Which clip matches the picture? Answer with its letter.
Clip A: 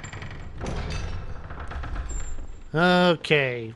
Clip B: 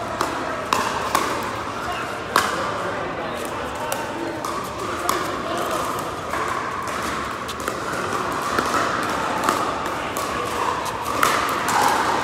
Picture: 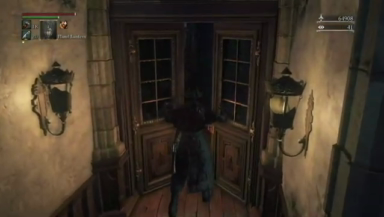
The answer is A